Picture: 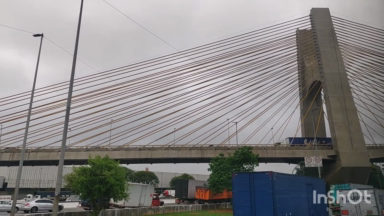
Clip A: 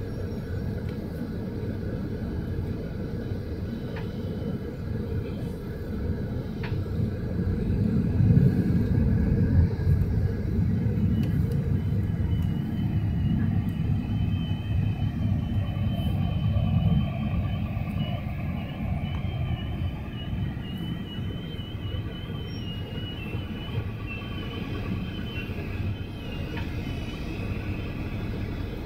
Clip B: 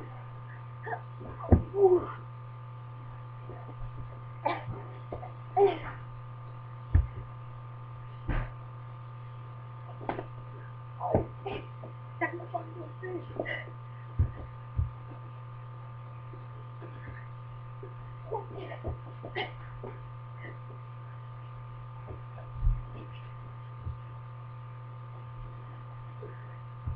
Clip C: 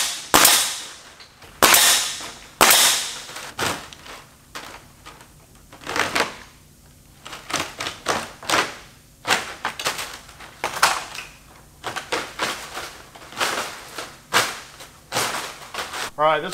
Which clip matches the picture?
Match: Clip A